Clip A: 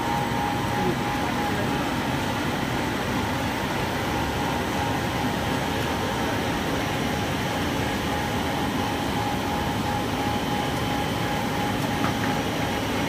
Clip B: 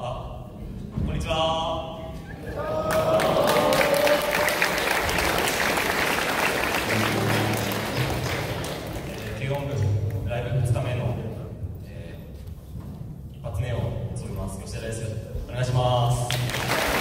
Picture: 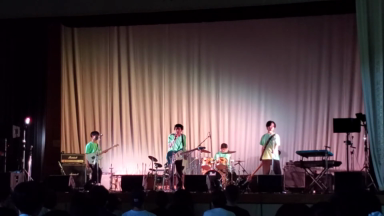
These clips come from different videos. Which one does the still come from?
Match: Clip B